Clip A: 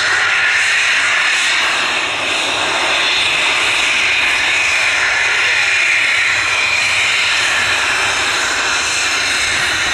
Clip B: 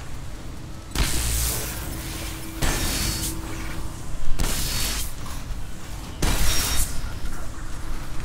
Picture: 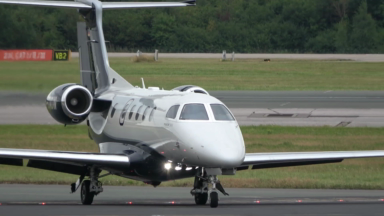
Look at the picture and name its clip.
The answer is A